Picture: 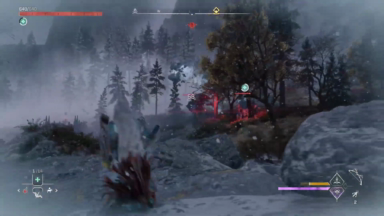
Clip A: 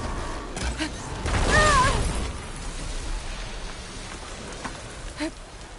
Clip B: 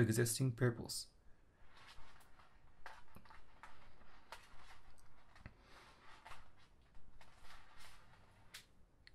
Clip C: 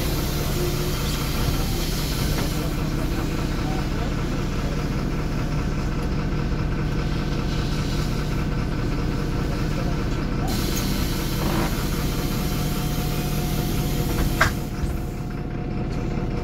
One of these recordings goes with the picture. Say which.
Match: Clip A